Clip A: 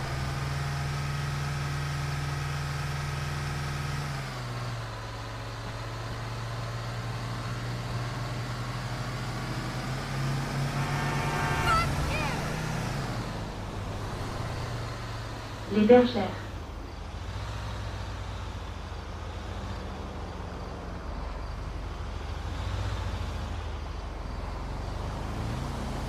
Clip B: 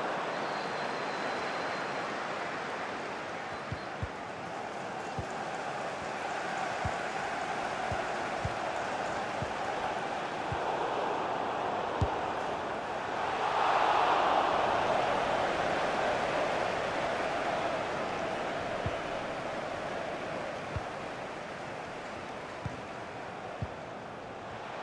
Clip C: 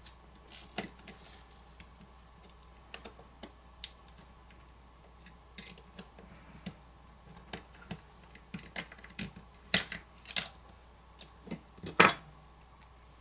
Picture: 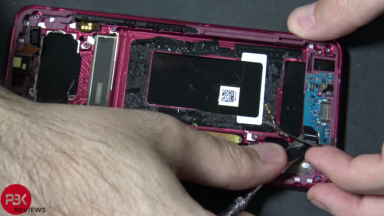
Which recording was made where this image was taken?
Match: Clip C